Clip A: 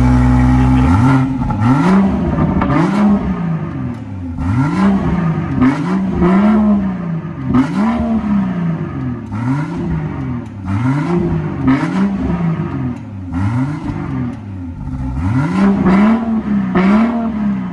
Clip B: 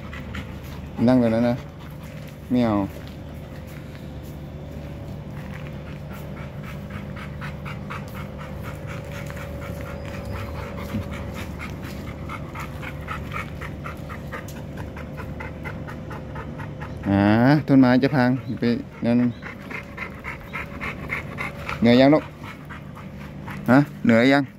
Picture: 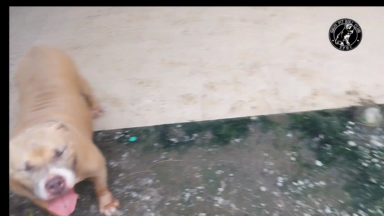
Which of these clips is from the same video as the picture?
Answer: B